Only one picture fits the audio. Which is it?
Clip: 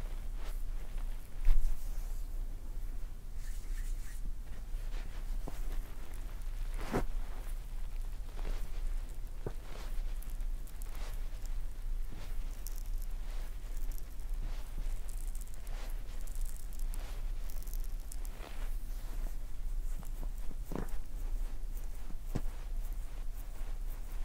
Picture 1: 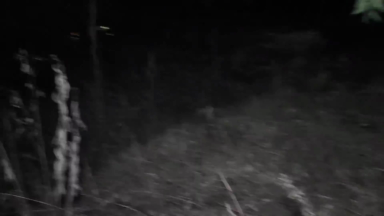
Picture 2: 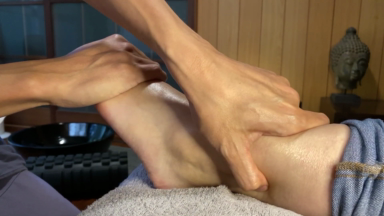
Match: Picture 2